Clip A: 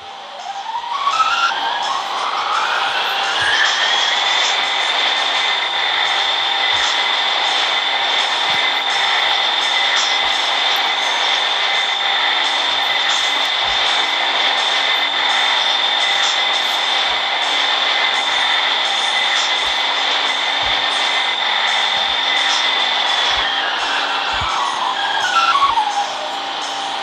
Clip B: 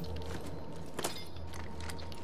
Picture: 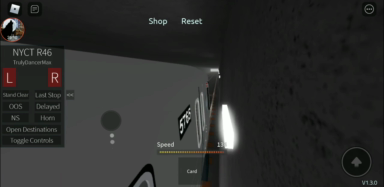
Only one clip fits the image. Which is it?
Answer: A